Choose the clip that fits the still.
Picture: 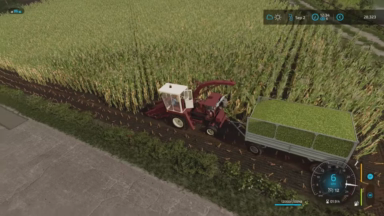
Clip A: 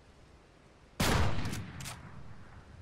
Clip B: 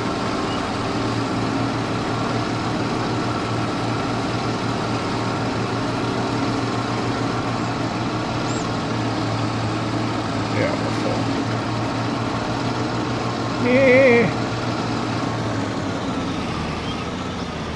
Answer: B